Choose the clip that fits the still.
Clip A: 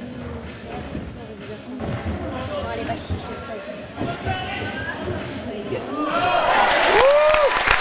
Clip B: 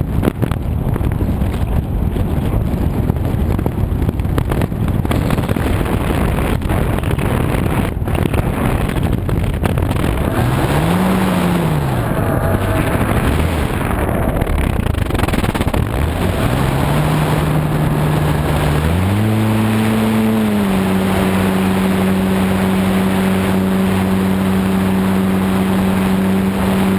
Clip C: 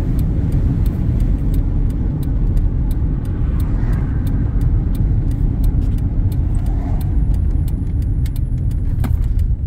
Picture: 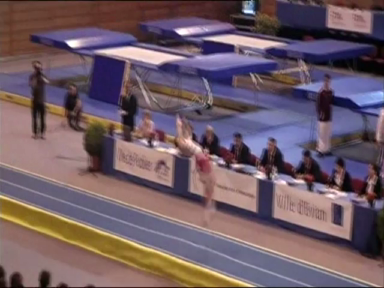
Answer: A